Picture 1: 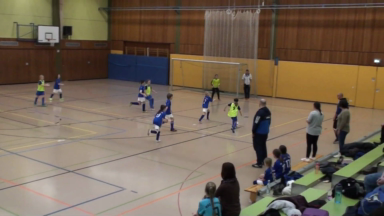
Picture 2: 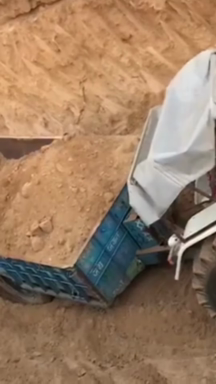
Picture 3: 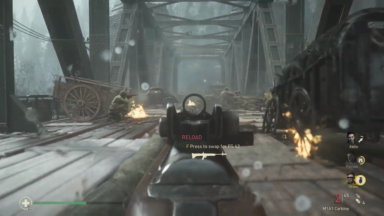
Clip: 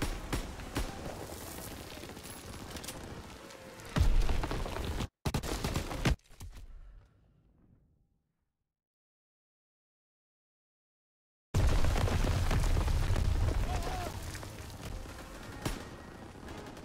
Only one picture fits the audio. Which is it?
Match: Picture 3